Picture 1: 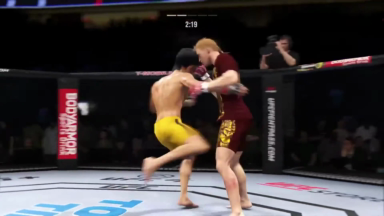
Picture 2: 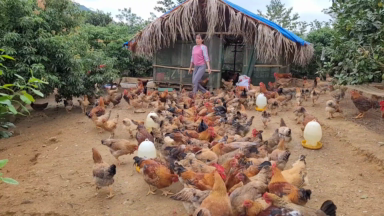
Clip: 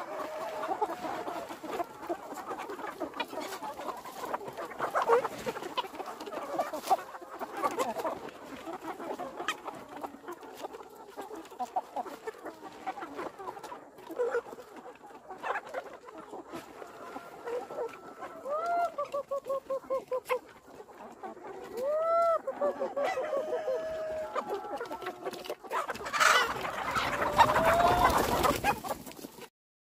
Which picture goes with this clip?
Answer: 2